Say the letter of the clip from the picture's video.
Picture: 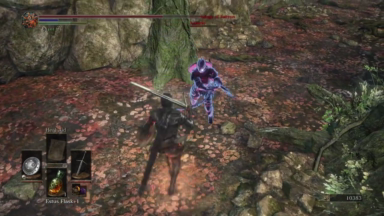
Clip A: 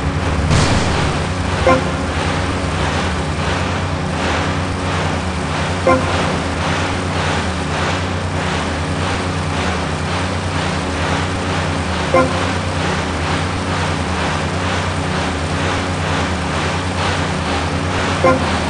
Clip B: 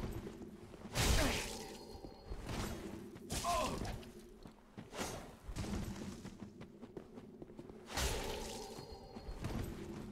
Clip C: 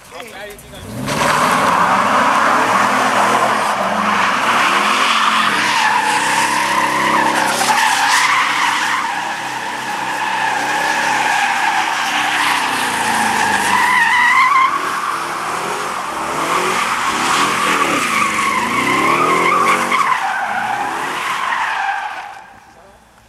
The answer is B